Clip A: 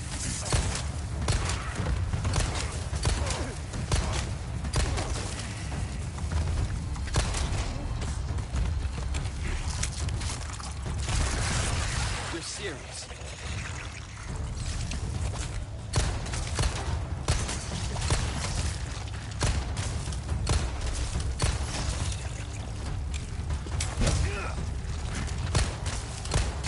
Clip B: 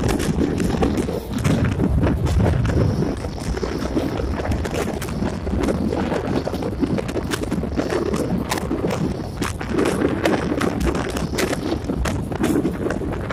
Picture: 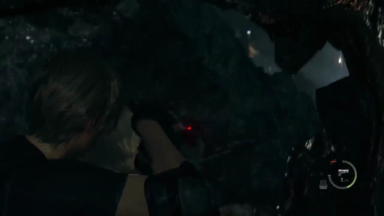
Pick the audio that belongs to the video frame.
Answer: A